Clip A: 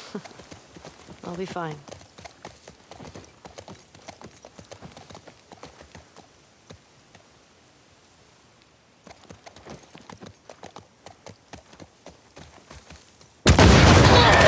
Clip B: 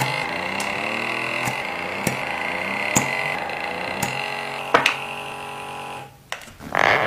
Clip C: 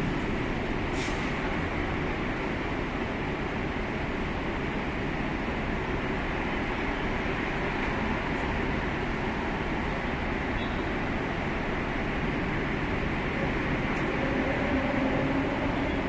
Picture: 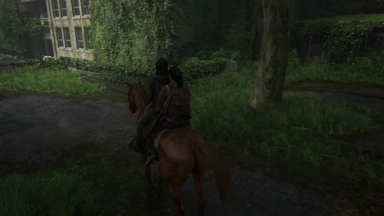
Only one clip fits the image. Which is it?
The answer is A